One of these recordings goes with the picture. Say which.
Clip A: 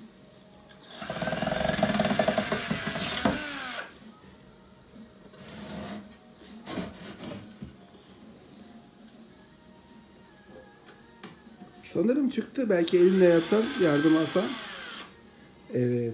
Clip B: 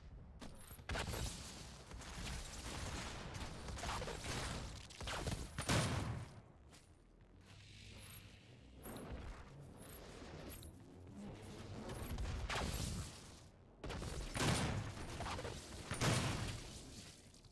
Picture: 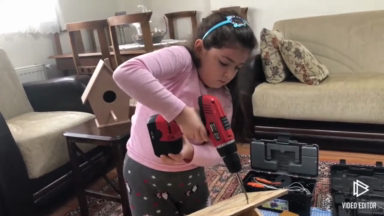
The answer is A